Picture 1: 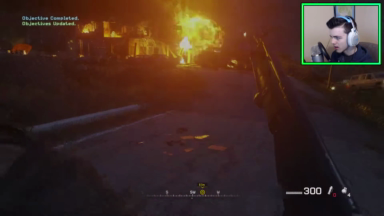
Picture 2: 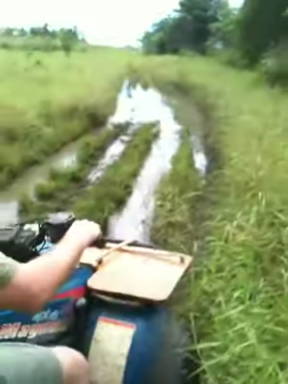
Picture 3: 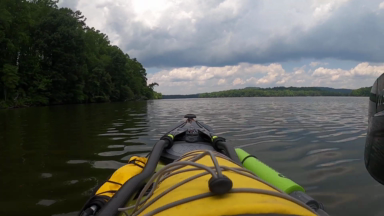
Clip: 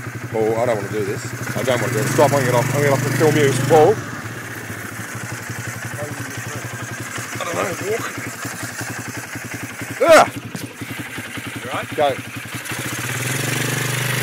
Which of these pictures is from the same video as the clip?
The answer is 2